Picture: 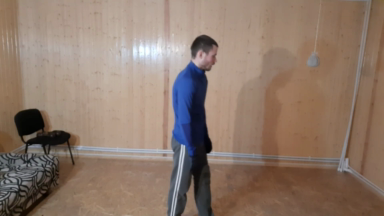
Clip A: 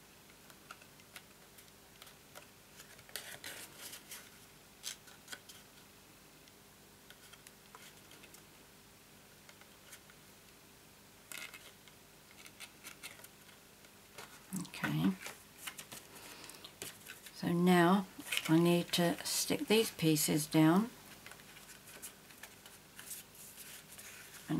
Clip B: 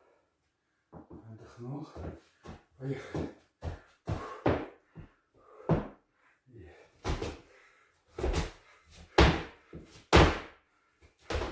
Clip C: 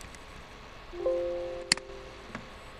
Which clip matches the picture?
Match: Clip B